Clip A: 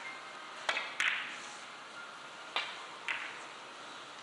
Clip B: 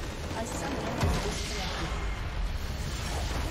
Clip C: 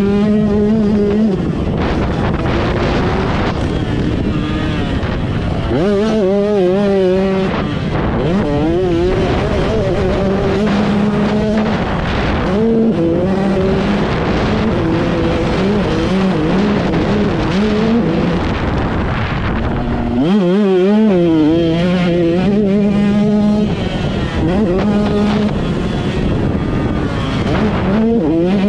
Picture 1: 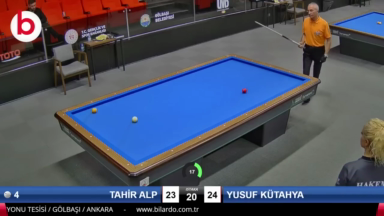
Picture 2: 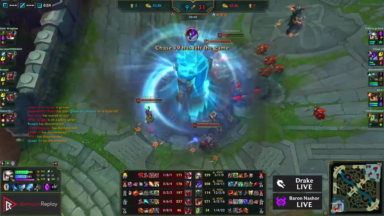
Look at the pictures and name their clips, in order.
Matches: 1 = A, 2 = B